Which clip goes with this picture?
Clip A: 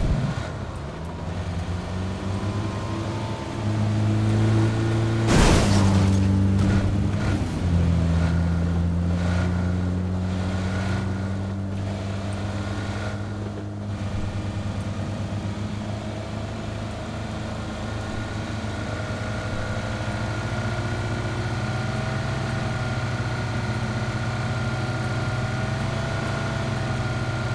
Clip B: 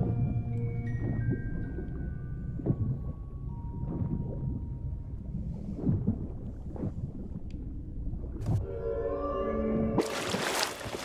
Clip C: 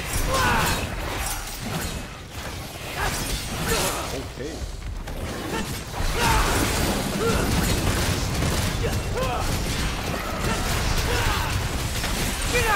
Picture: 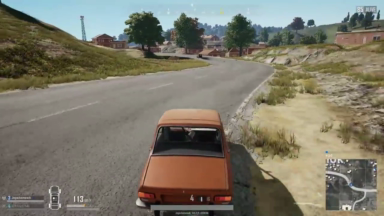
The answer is A